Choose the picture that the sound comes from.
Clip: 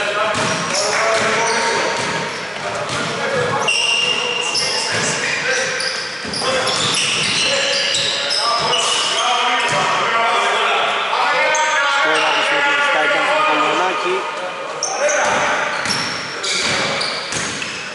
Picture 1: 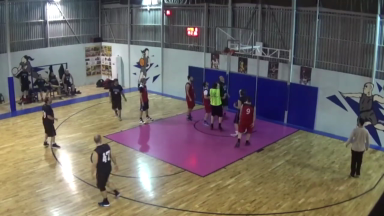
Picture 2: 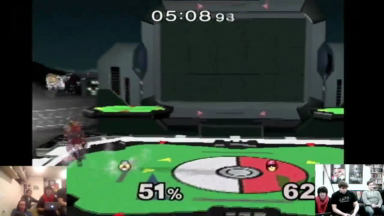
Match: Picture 1